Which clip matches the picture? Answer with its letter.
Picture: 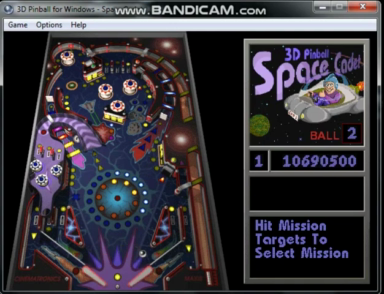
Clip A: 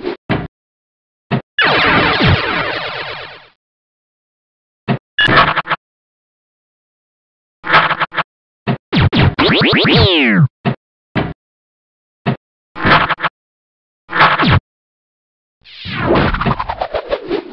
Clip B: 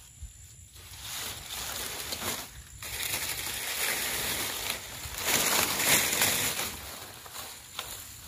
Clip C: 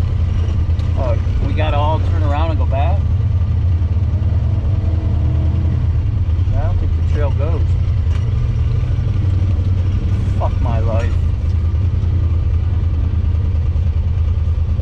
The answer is A